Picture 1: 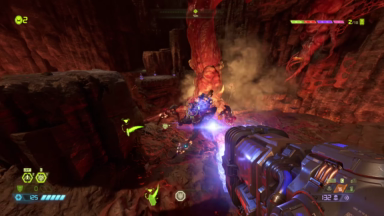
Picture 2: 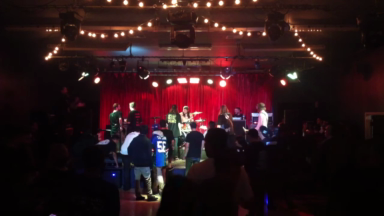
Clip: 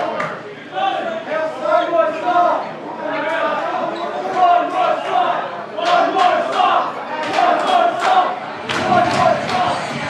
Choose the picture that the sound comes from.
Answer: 2